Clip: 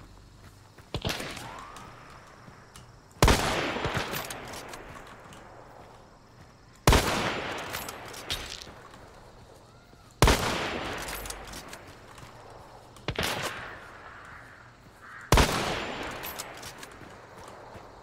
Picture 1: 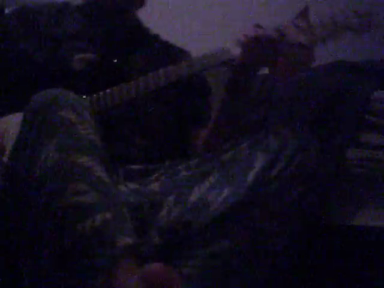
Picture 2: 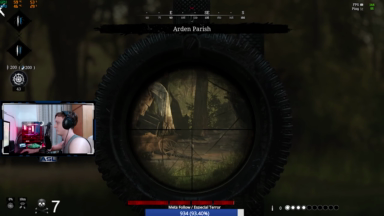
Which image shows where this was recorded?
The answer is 2